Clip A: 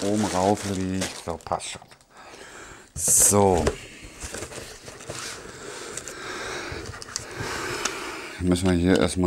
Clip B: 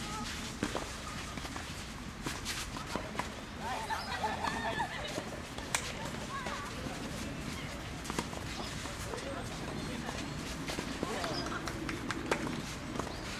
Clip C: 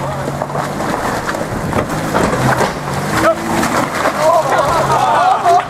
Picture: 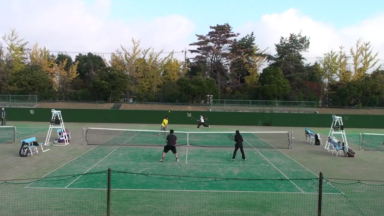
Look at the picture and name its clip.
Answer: B